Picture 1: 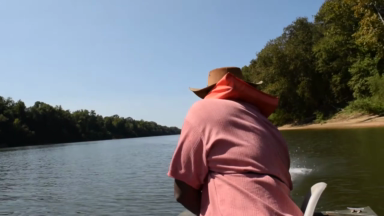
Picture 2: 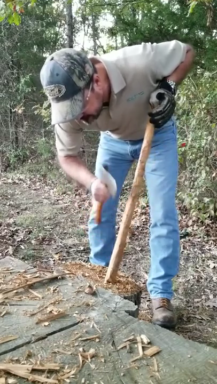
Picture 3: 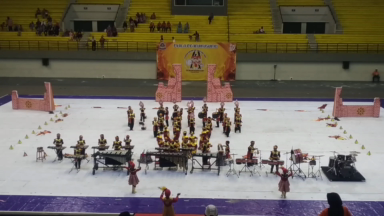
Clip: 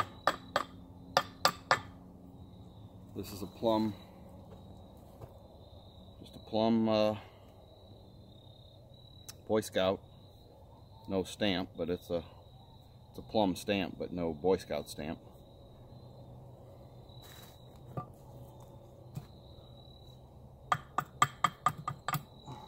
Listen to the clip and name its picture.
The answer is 2